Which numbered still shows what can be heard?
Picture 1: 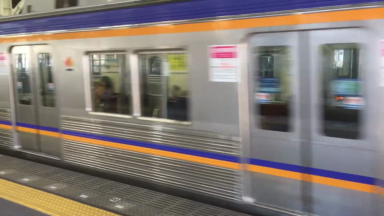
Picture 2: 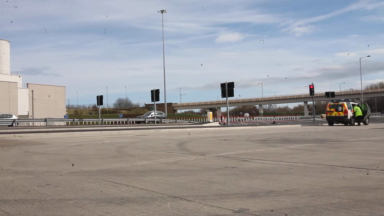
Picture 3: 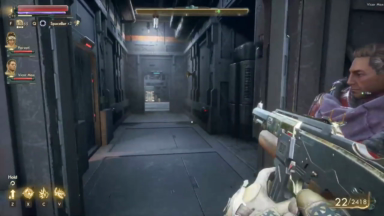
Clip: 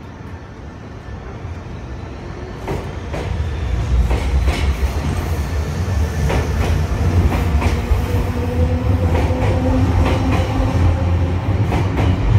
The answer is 1